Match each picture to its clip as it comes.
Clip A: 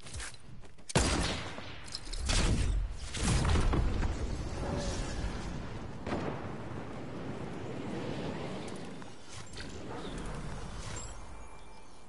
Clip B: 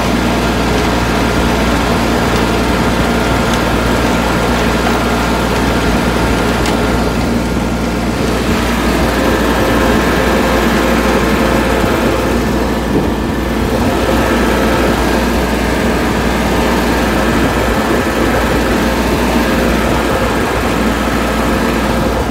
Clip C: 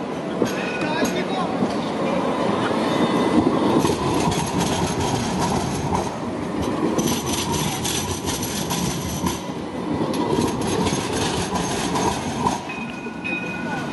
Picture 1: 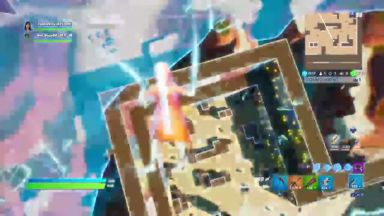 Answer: A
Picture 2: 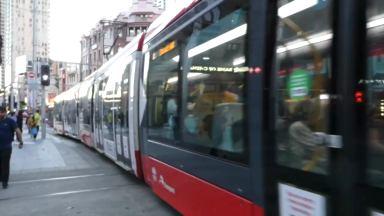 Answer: C